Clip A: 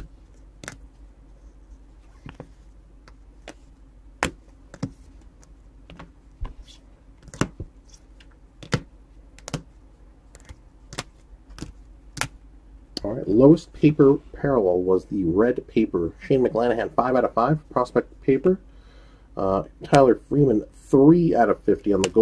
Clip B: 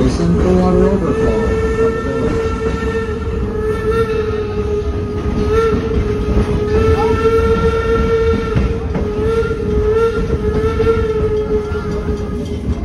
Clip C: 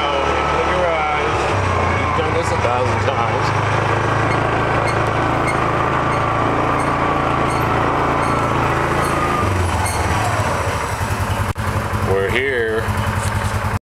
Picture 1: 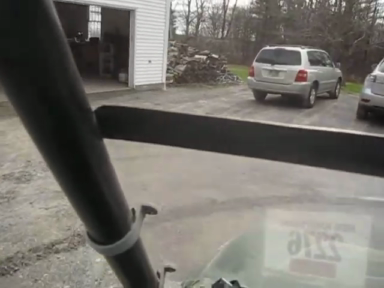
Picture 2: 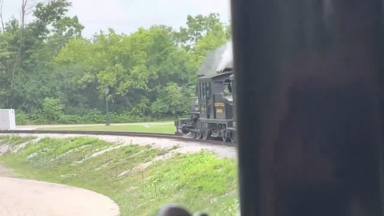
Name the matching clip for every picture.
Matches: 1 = C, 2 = B